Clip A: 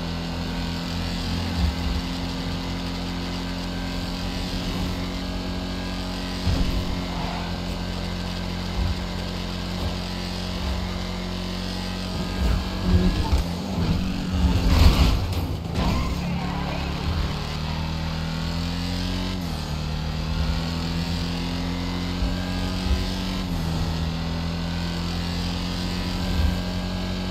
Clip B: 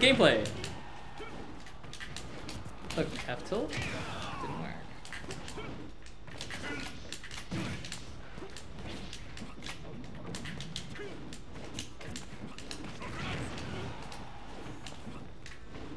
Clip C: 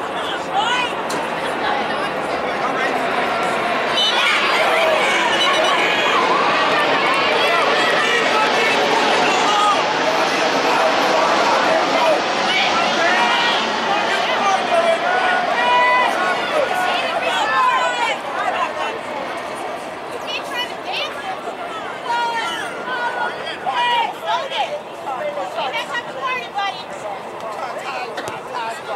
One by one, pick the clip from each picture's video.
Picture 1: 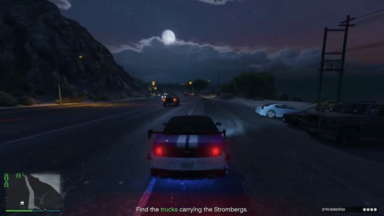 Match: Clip A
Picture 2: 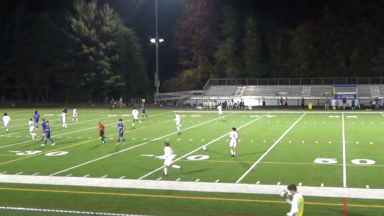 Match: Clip C